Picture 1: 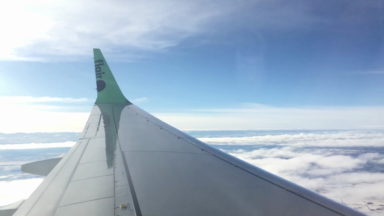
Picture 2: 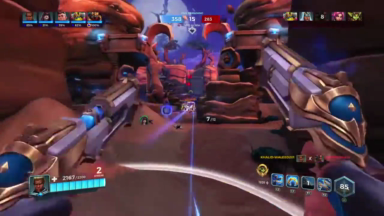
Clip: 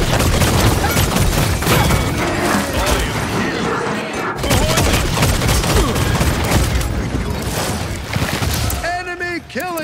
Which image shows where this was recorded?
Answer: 2